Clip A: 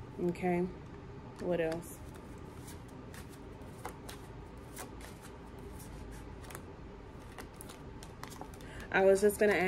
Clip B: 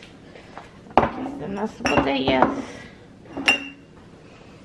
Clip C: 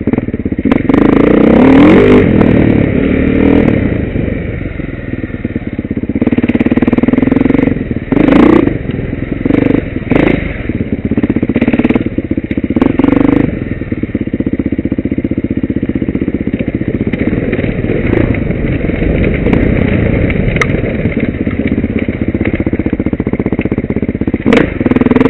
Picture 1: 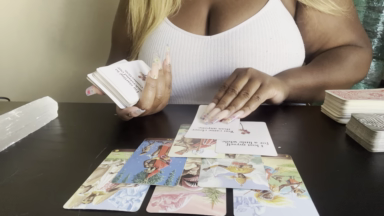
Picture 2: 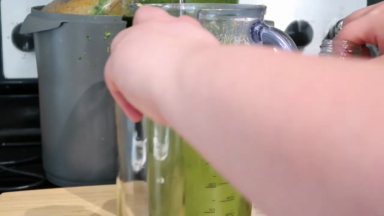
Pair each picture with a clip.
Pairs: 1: A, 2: B